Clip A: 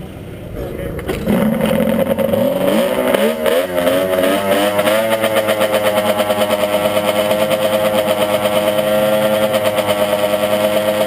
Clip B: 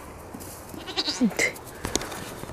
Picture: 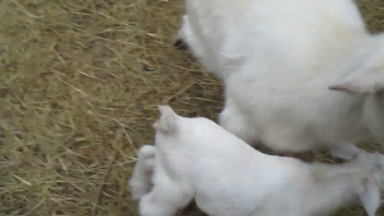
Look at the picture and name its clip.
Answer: B